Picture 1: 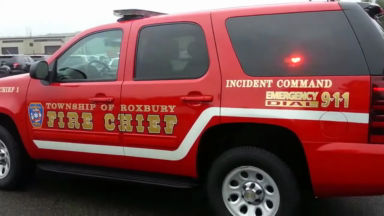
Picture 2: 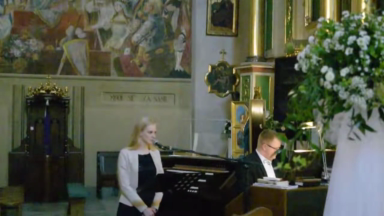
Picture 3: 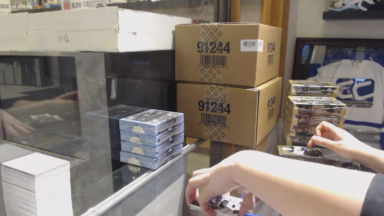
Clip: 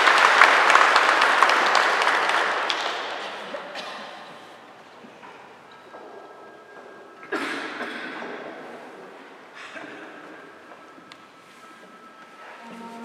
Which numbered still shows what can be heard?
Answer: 2